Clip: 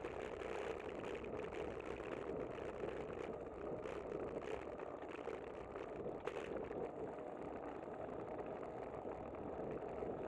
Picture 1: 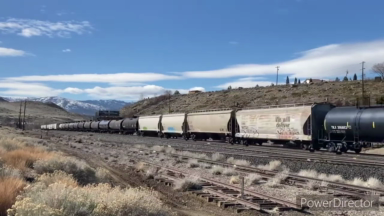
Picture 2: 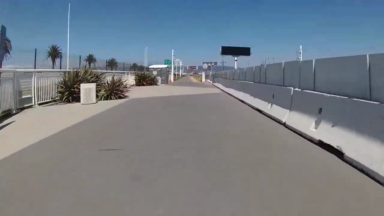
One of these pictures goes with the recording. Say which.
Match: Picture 2